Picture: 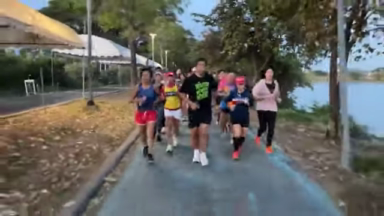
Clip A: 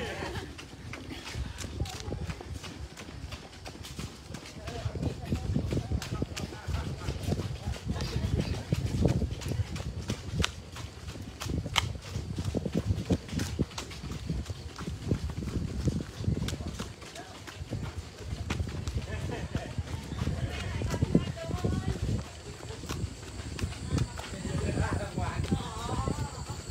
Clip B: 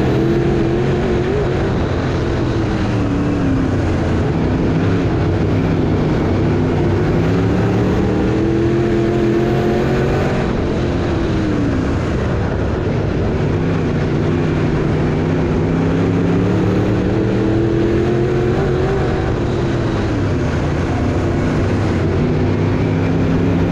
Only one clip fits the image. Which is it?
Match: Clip A